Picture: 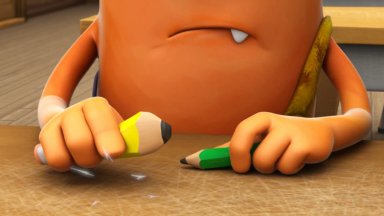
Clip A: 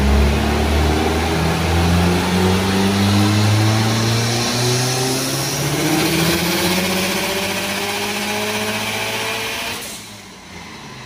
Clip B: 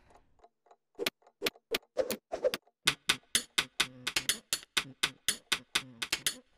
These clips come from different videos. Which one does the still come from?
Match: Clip B